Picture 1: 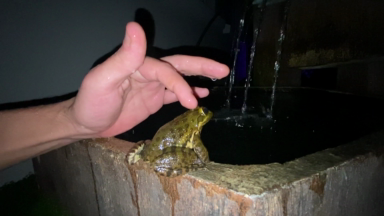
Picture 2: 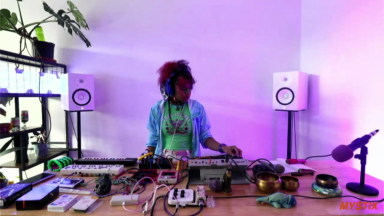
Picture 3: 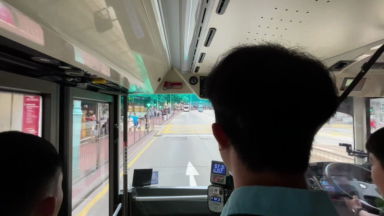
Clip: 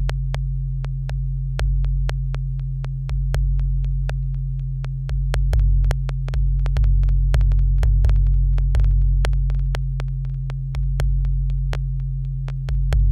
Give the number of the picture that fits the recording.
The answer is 2